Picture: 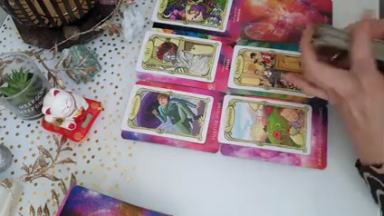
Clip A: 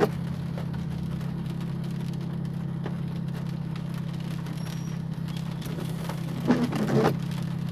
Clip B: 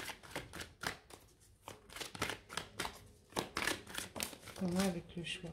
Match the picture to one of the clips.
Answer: B